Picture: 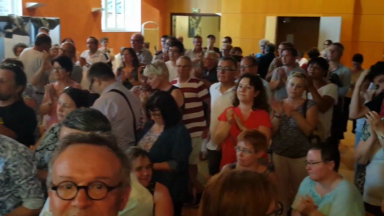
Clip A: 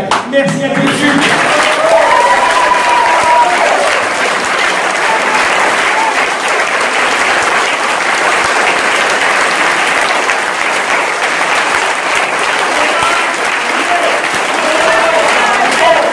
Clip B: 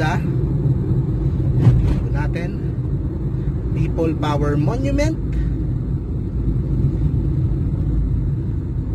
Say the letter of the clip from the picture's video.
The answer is A